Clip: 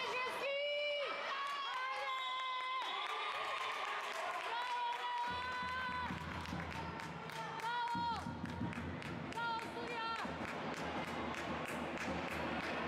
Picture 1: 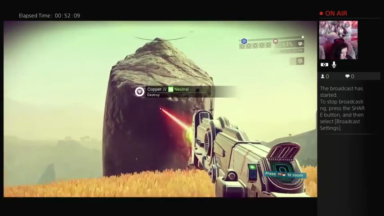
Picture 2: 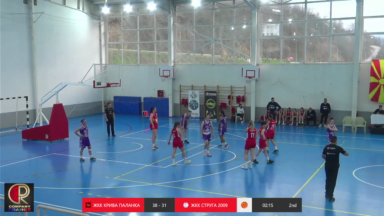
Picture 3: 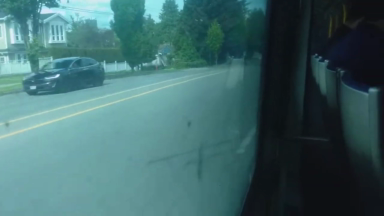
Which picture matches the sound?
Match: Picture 2